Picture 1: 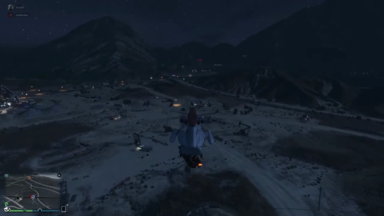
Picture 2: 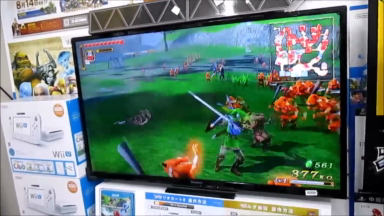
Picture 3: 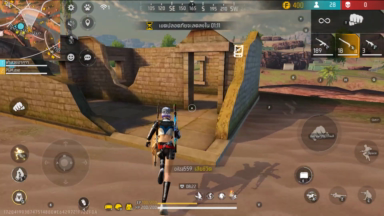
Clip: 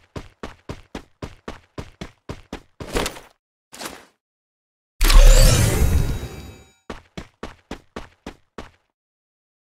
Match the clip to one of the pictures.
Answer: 3